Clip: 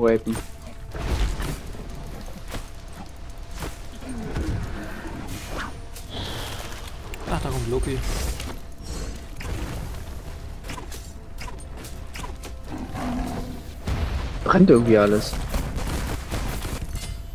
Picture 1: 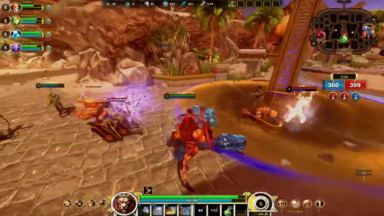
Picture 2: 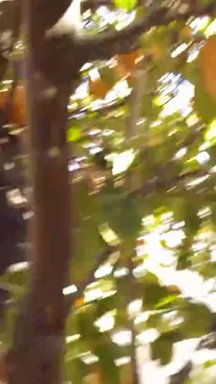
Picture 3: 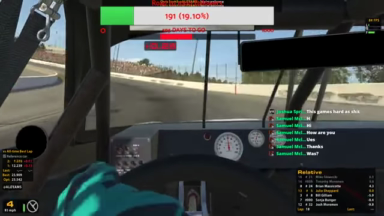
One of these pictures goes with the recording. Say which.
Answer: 1